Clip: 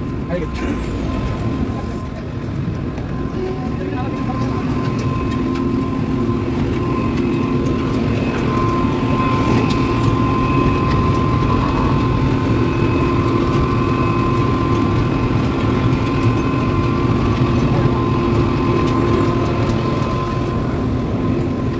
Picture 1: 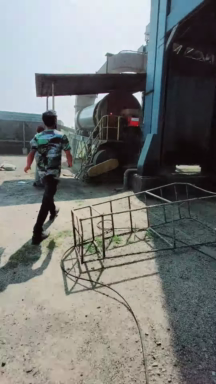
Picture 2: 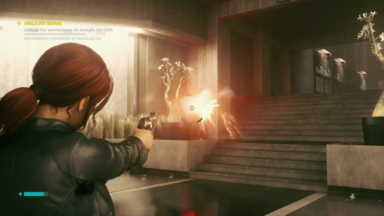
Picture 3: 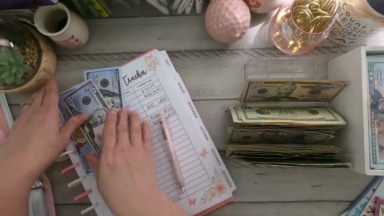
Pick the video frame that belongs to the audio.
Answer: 1